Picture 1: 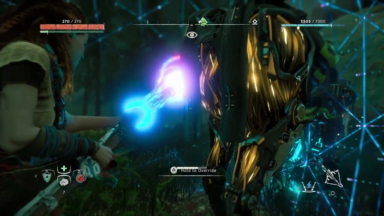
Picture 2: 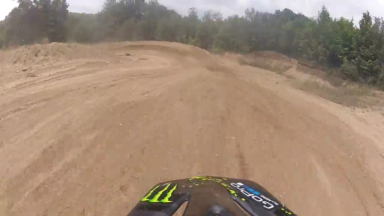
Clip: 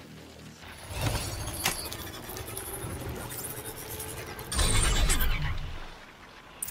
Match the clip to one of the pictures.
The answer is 1